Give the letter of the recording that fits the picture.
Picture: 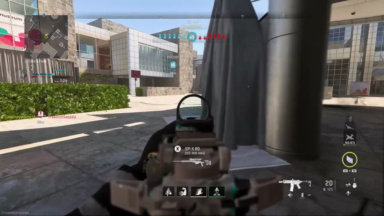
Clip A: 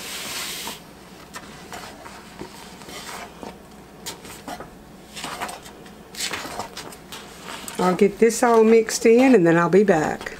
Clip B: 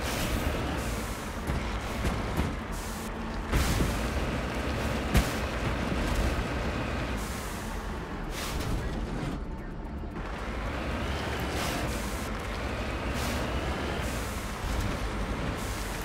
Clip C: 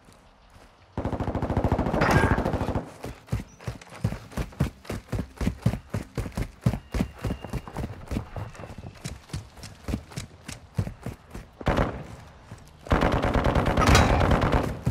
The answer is C